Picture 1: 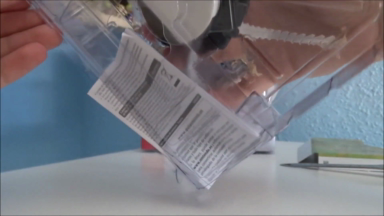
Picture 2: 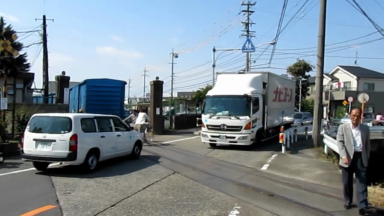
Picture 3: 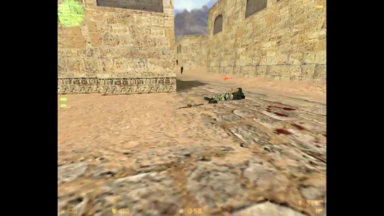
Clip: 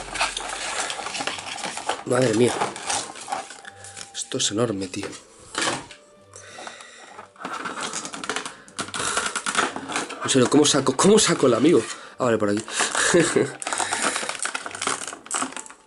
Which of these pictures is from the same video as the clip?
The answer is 1